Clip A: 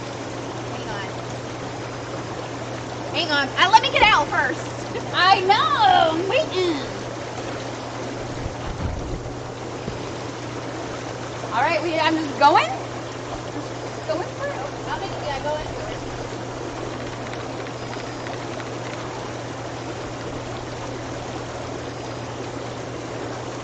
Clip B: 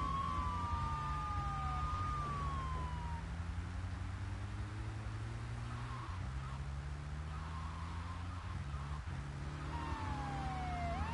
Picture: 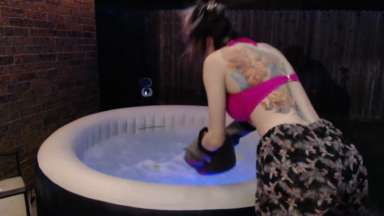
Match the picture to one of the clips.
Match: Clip A